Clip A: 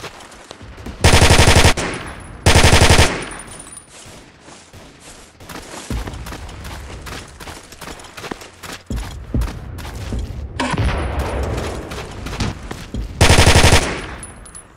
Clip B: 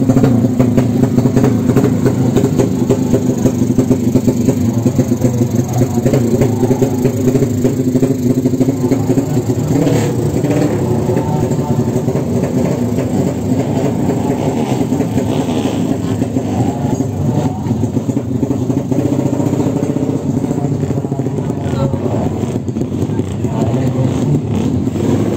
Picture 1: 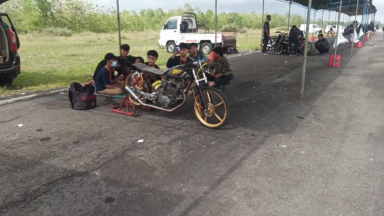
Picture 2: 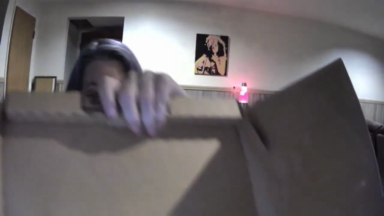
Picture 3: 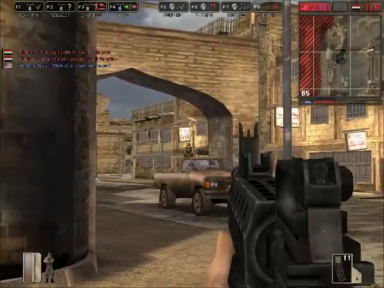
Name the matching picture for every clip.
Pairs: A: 3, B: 1